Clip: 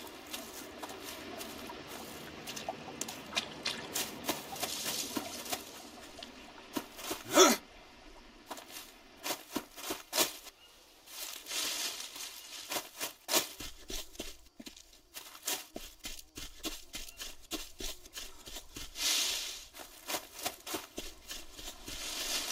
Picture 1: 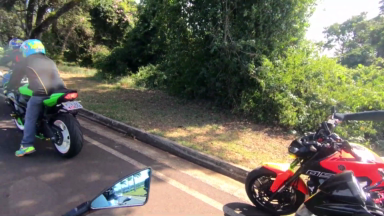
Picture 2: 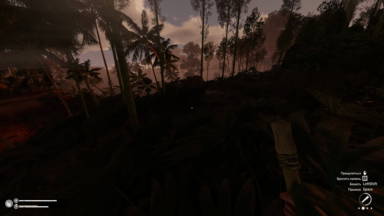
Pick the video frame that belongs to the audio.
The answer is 2